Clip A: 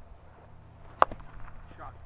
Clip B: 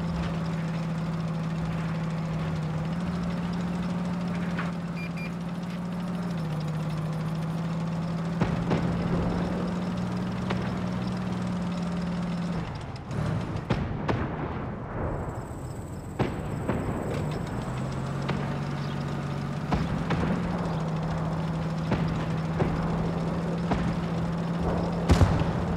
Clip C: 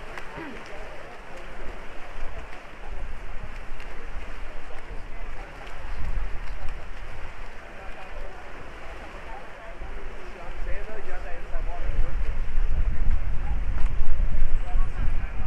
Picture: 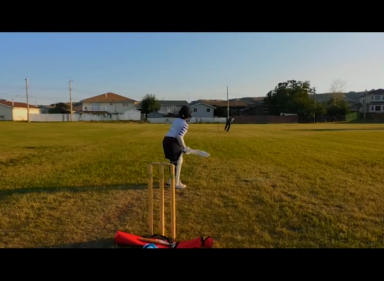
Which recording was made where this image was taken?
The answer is A